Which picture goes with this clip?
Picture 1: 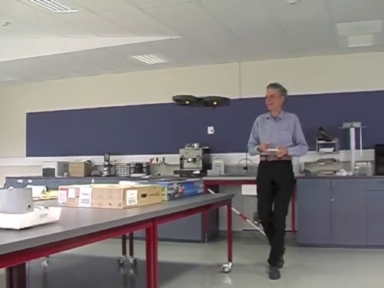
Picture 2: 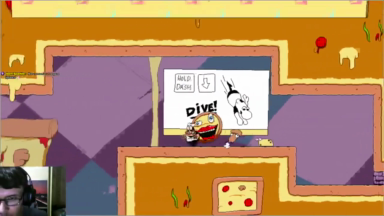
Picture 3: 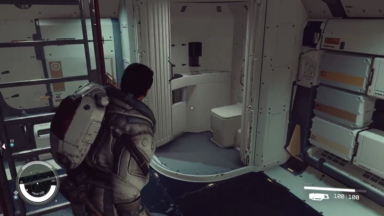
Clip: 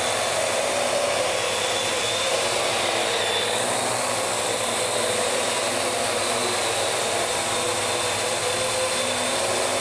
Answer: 1